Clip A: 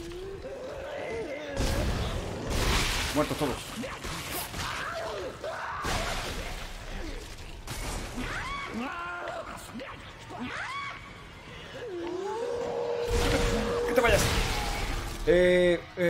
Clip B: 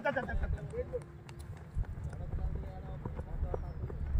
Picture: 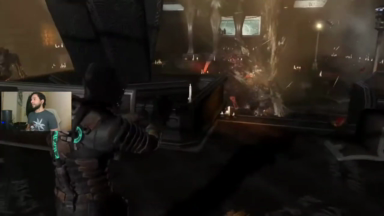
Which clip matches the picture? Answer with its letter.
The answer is A